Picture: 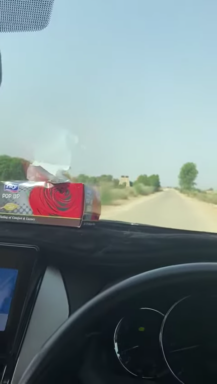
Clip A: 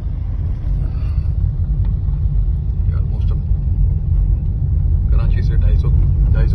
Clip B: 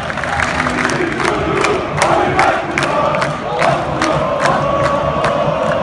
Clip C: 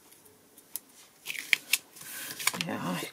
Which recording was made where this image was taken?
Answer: A